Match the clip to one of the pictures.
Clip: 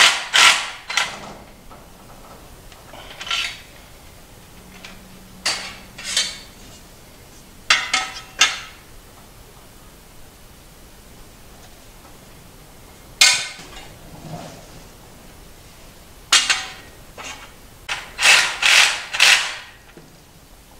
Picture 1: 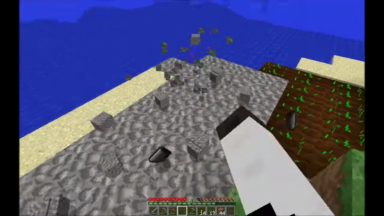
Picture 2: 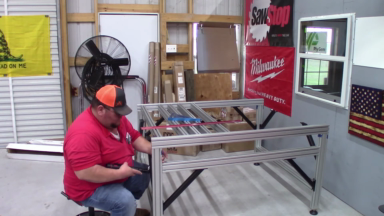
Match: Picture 2